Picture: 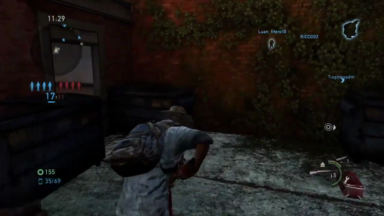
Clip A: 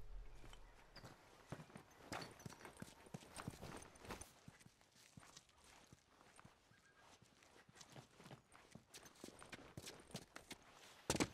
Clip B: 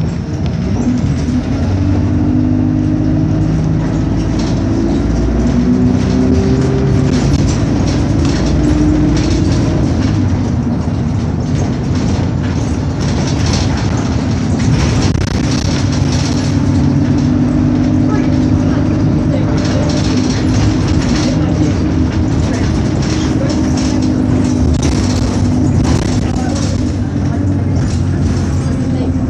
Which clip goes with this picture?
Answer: A